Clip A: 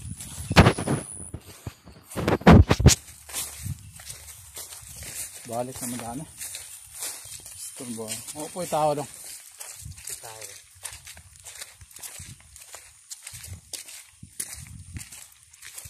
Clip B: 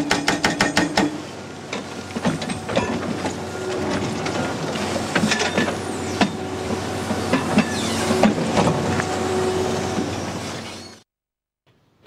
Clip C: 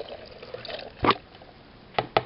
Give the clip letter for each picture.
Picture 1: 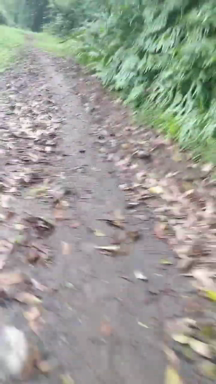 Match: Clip A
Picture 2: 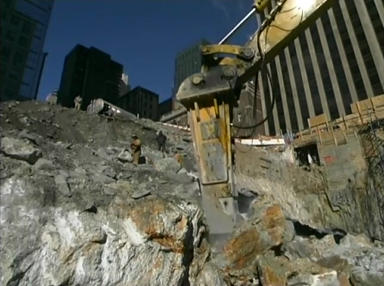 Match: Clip B